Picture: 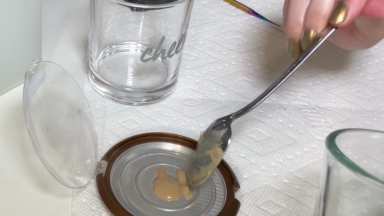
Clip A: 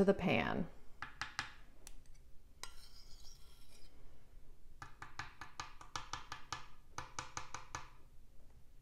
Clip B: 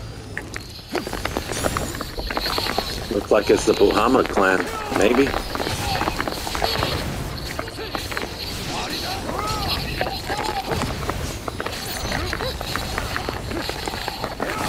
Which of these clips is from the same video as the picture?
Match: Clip A